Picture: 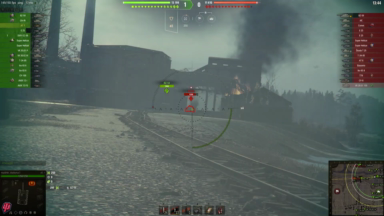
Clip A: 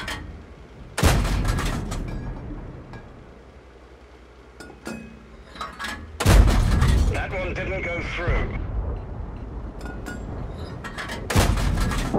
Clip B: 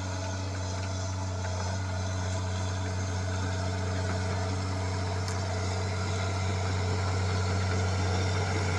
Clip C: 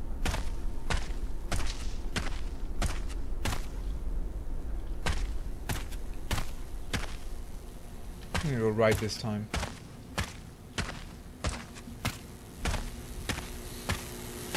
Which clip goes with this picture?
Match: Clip A